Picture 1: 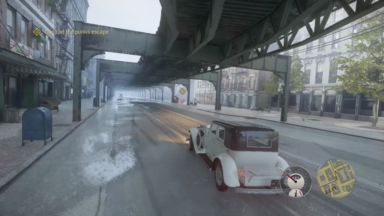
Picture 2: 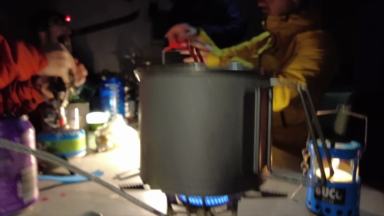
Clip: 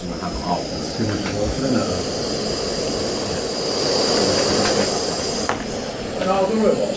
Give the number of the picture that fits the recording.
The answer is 2